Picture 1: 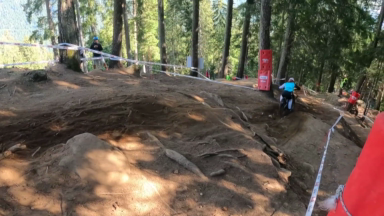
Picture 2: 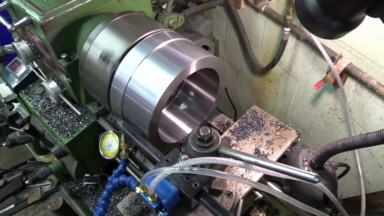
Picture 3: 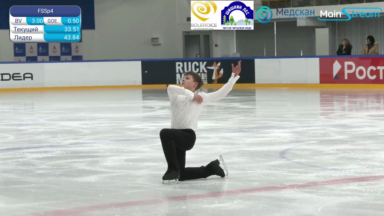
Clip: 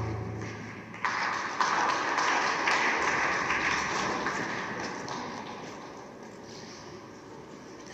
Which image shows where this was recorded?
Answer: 3